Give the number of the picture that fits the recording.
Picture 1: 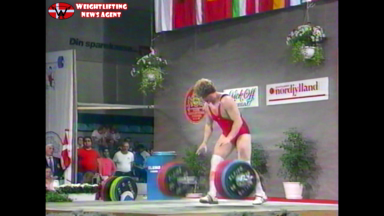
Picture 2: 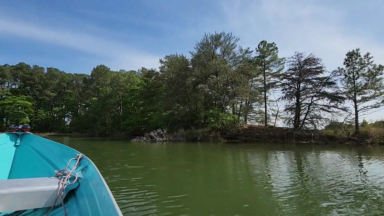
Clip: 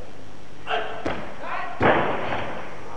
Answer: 1